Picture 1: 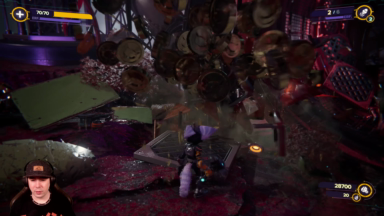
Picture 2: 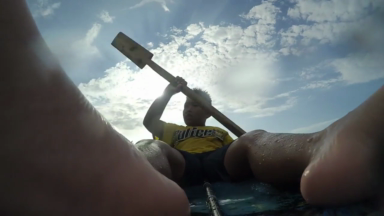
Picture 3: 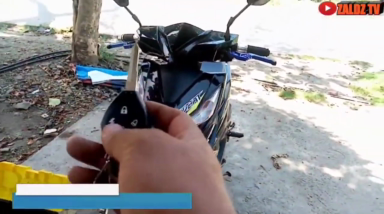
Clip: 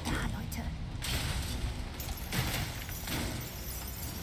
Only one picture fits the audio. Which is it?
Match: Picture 1